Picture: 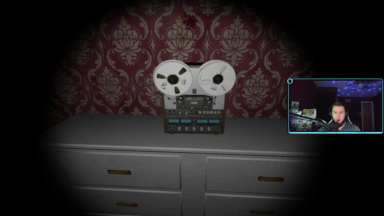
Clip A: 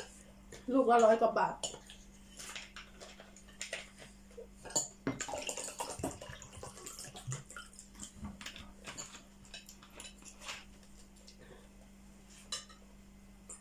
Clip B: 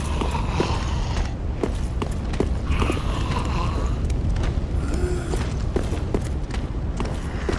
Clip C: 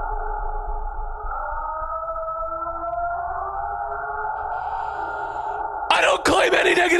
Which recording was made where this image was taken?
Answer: C